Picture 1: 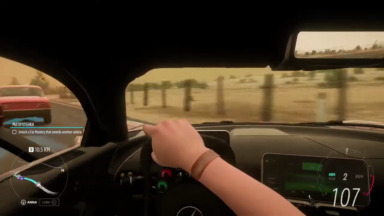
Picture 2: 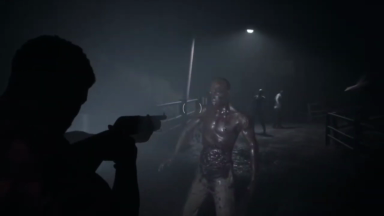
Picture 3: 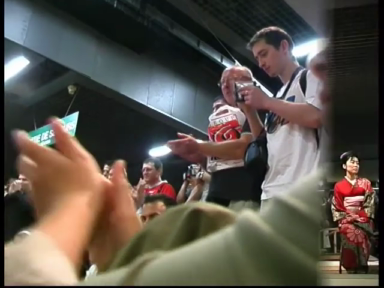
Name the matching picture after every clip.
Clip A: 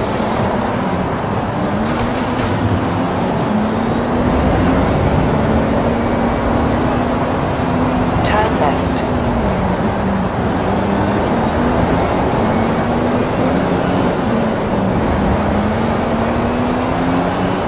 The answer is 1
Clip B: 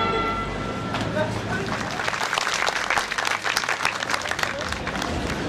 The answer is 3